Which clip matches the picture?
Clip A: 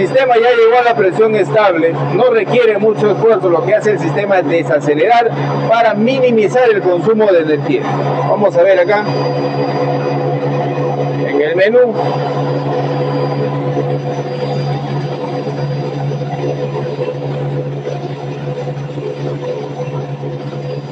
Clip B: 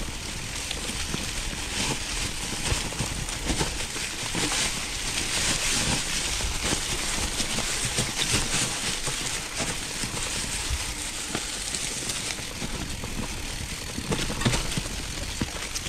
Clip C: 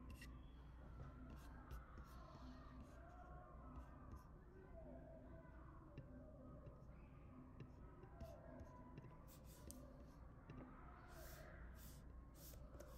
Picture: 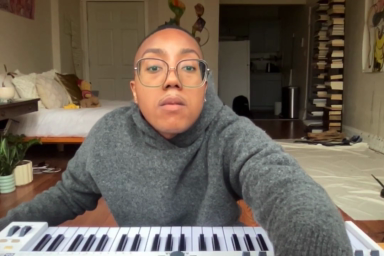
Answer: C